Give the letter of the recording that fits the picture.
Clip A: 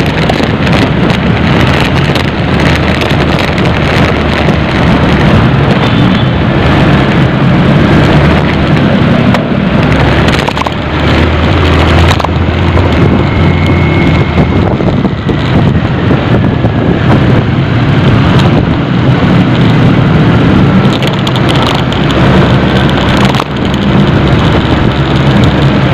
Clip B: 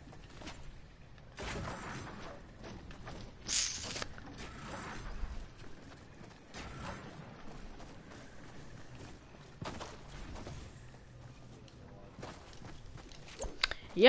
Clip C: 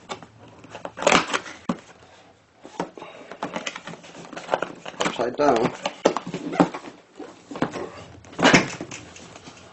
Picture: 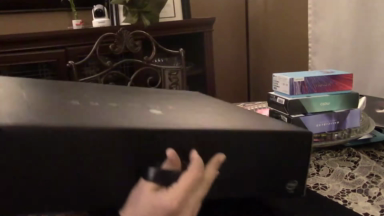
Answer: C